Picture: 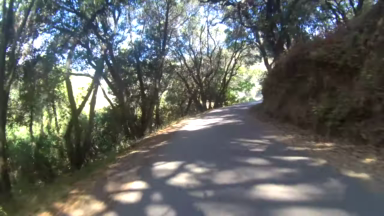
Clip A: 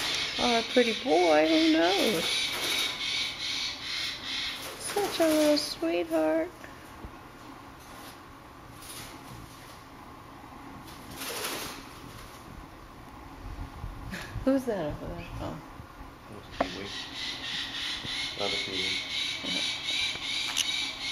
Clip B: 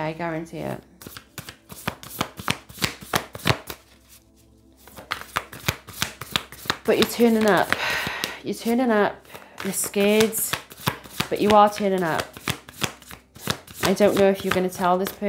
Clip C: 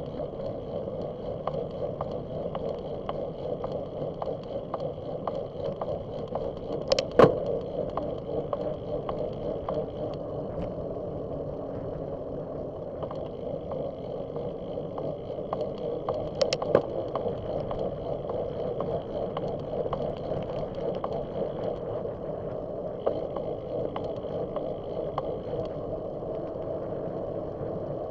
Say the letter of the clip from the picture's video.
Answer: C